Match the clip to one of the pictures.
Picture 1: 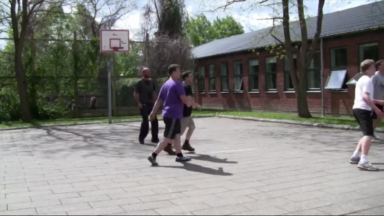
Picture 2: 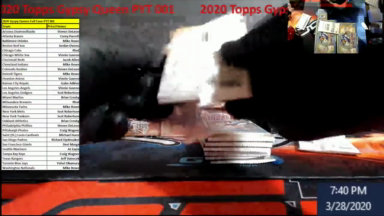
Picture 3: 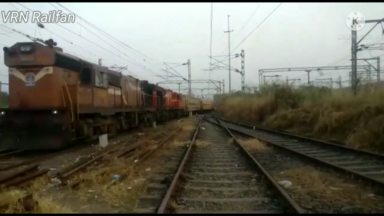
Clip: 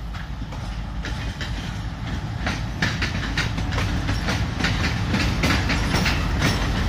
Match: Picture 3